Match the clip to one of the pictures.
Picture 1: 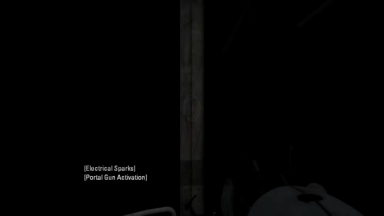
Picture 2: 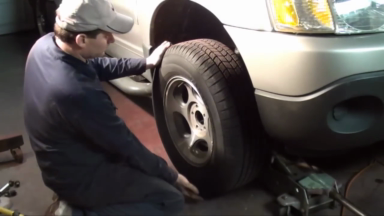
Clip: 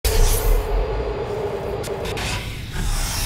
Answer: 1